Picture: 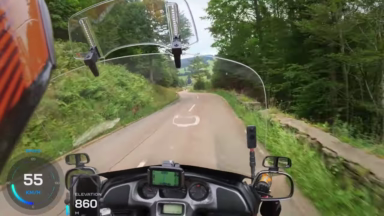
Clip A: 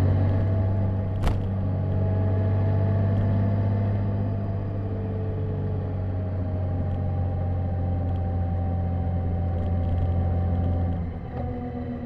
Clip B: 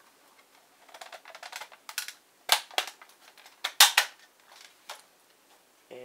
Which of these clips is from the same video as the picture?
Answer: A